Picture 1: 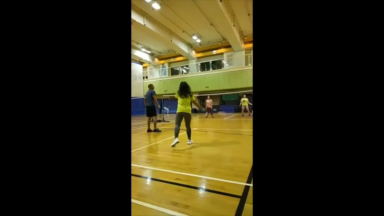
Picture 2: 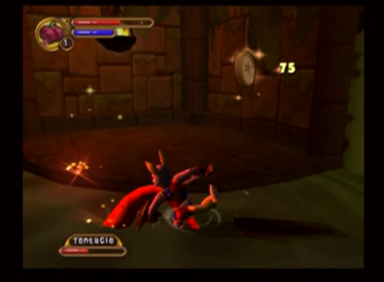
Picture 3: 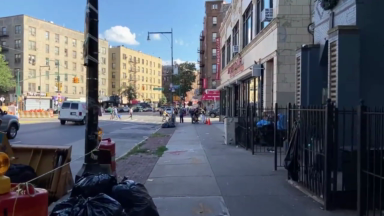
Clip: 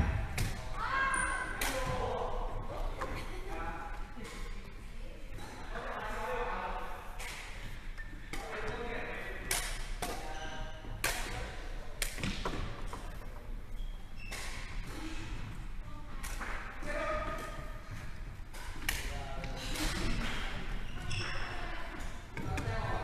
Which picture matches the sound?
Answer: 1